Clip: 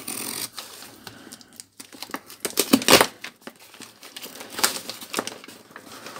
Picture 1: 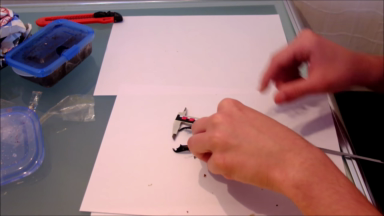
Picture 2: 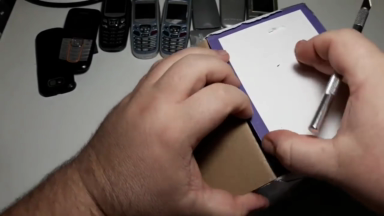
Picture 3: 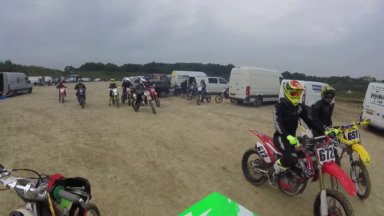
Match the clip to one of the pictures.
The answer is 2